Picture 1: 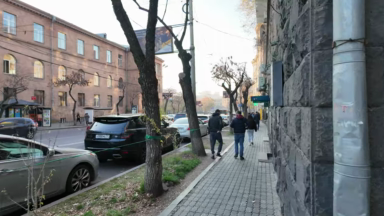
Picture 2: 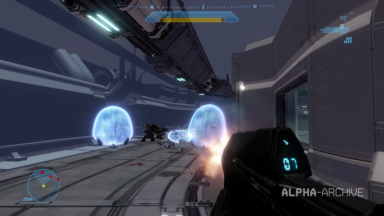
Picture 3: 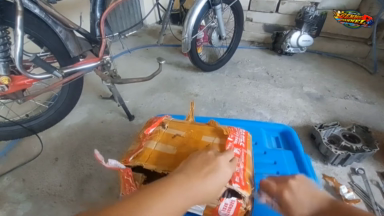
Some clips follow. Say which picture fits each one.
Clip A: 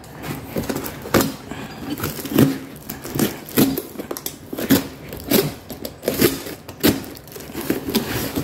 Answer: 3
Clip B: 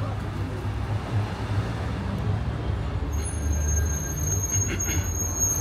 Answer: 1